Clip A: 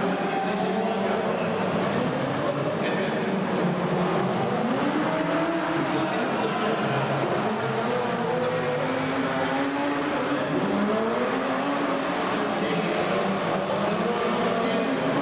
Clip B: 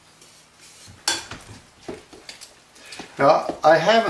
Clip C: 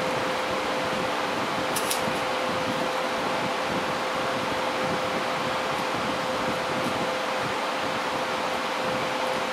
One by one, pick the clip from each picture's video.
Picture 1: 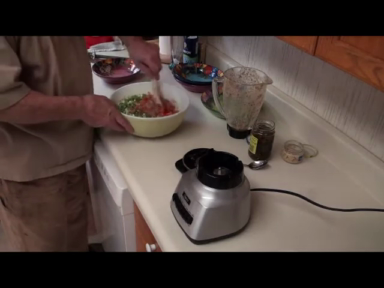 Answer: B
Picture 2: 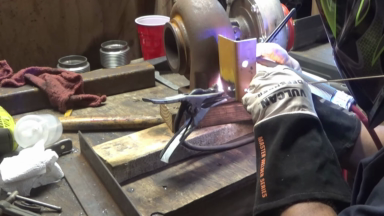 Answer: C